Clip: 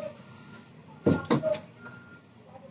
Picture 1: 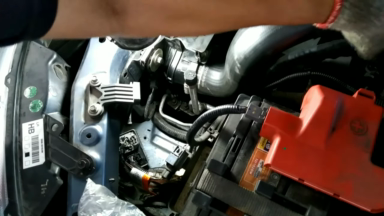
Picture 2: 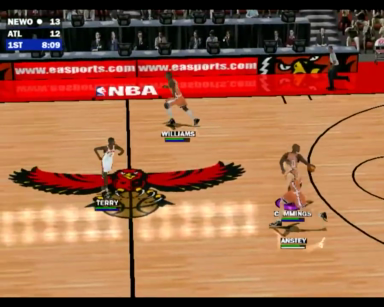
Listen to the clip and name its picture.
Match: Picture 1